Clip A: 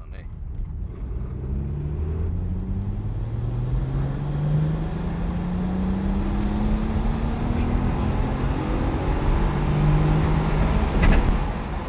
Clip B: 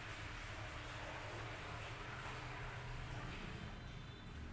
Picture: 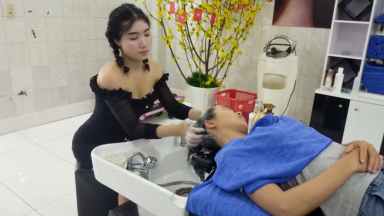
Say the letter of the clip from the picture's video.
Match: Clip B